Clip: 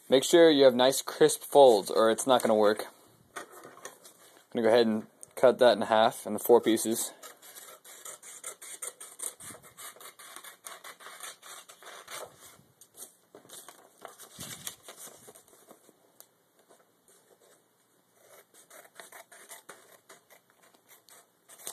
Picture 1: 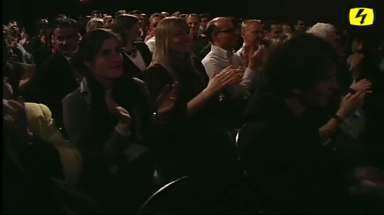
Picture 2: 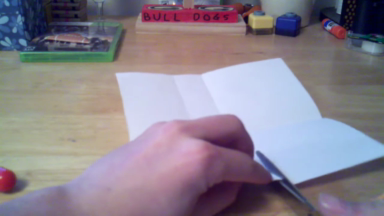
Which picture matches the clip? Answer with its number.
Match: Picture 2